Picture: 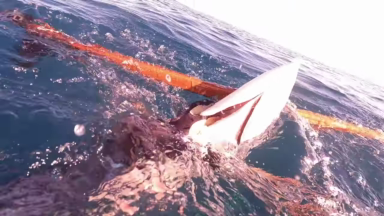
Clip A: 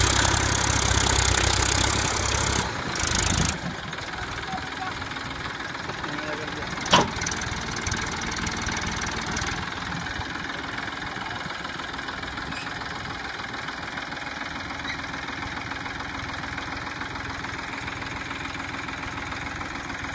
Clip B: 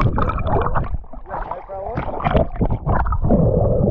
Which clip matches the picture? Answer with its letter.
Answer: B